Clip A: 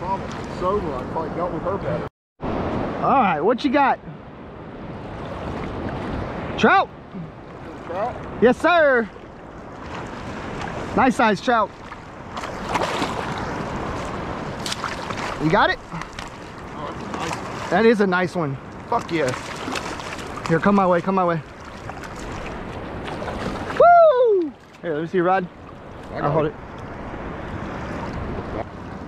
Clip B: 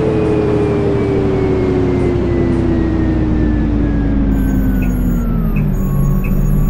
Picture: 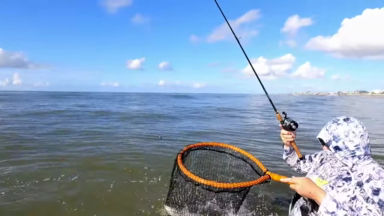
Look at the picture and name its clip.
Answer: A